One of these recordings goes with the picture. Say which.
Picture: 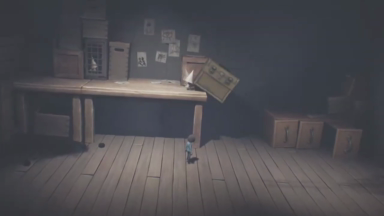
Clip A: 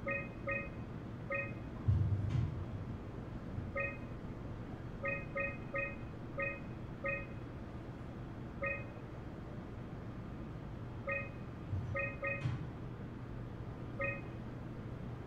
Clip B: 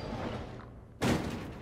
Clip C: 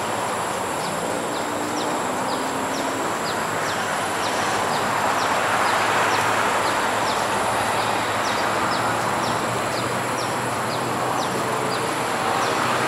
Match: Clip B